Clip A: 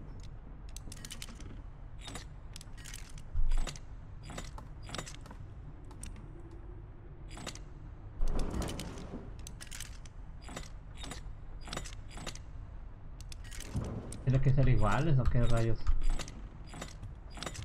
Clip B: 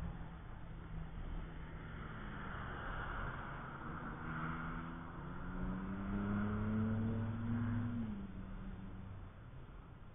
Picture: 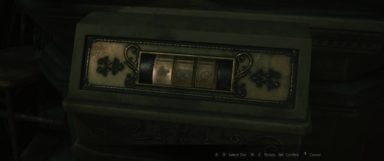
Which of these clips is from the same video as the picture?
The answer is A